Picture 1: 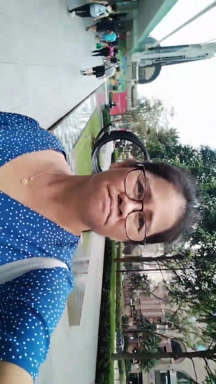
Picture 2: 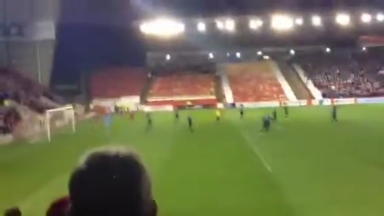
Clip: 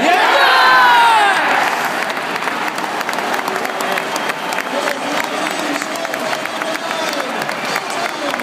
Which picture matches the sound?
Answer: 2